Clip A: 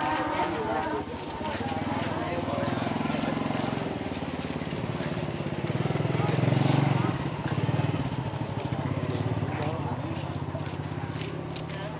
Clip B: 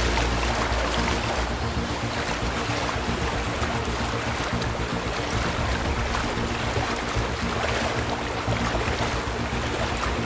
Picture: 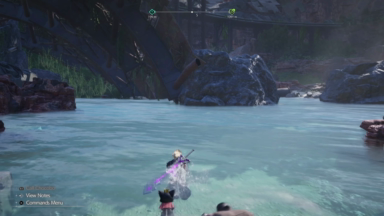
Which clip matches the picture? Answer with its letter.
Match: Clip B